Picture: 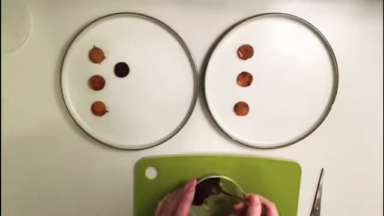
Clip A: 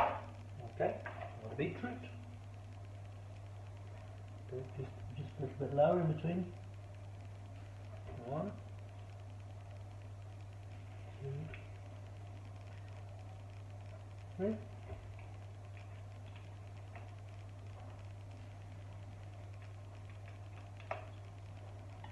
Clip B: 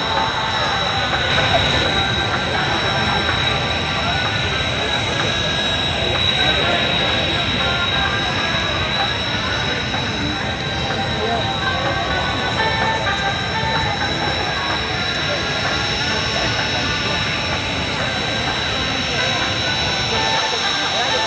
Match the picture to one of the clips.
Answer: A